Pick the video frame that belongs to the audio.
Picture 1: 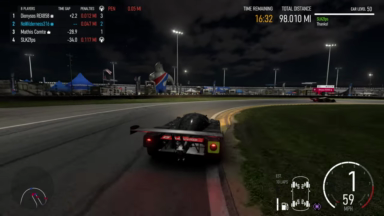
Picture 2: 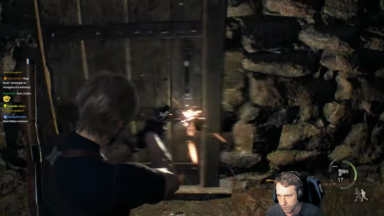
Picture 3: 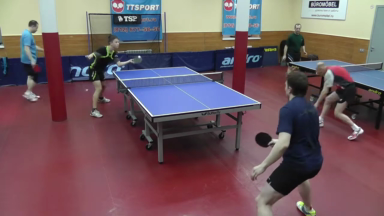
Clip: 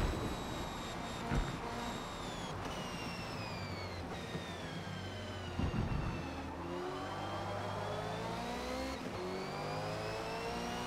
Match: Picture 1